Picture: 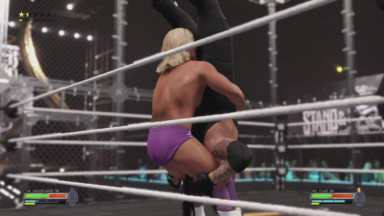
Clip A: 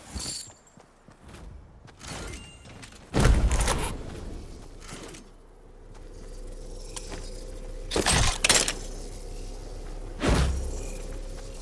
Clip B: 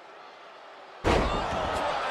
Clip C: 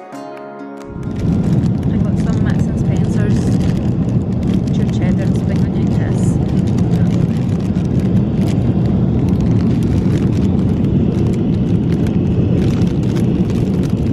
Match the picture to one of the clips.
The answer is B